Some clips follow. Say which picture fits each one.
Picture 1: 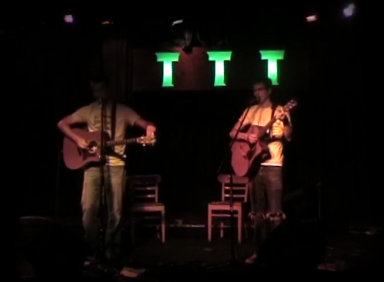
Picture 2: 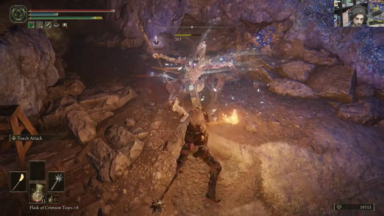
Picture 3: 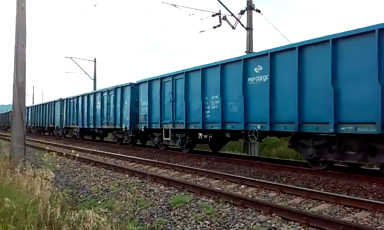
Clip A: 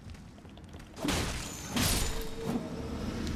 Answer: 2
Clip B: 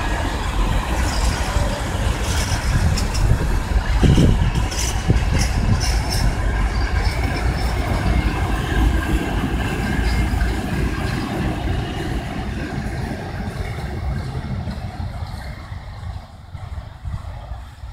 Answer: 3